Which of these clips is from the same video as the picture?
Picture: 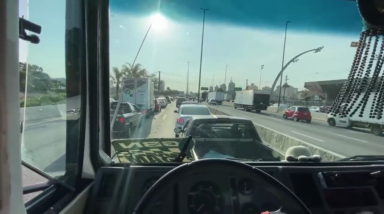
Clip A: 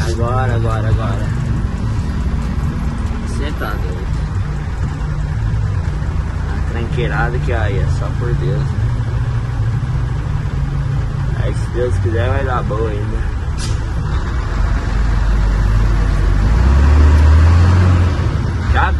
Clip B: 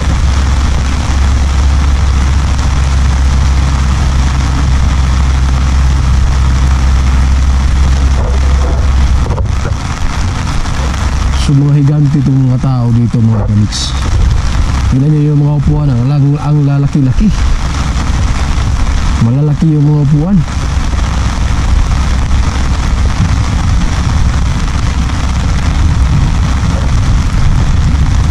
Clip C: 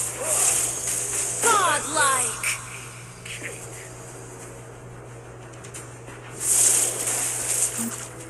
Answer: A